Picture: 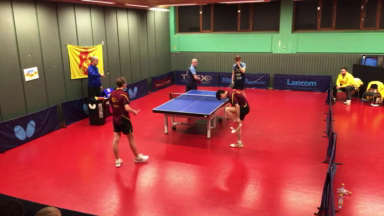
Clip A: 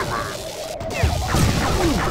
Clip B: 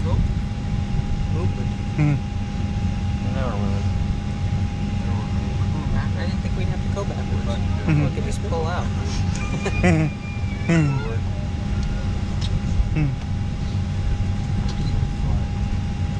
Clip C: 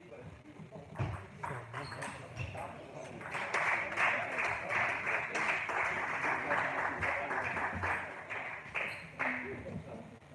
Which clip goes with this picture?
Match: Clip C